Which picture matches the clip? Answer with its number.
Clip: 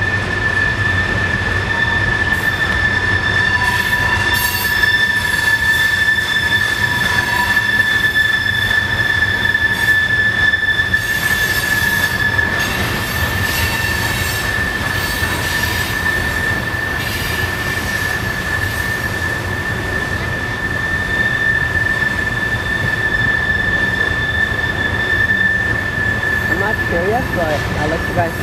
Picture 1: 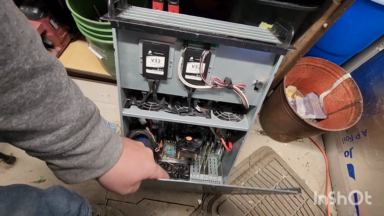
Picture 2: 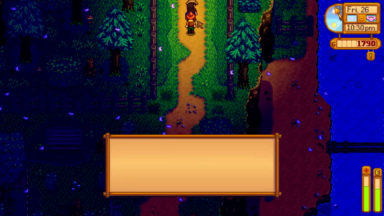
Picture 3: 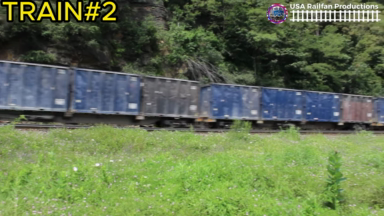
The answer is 3